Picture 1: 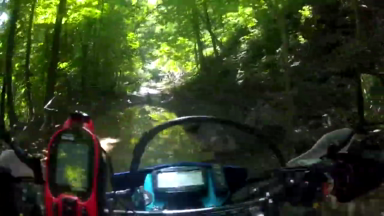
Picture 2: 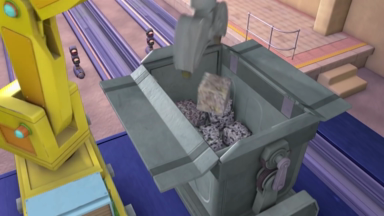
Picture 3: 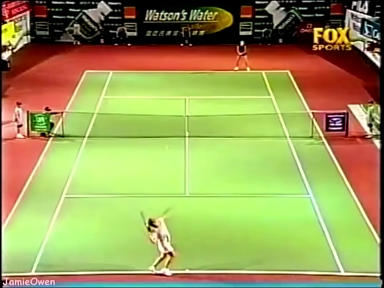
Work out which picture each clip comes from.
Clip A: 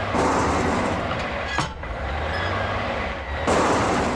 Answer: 2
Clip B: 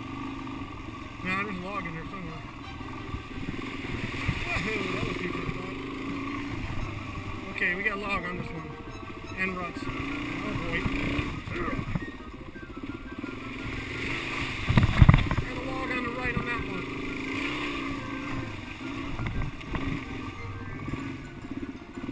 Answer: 1